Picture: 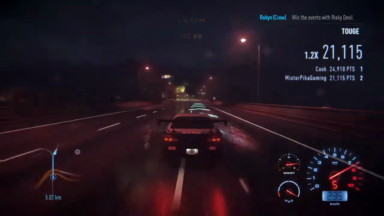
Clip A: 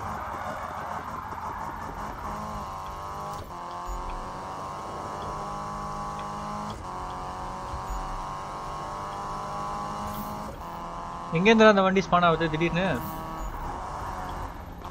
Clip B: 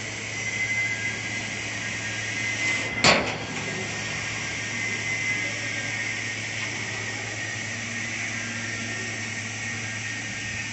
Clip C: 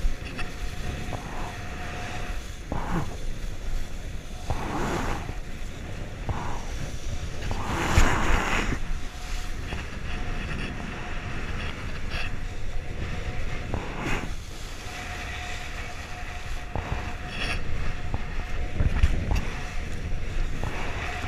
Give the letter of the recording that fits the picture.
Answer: A